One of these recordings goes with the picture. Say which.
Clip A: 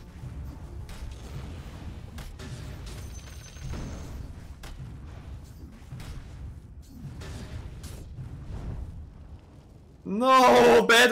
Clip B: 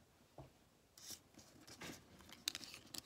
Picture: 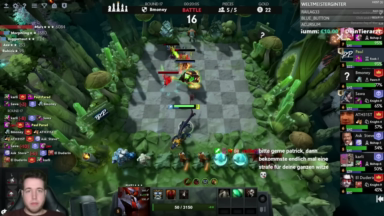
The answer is A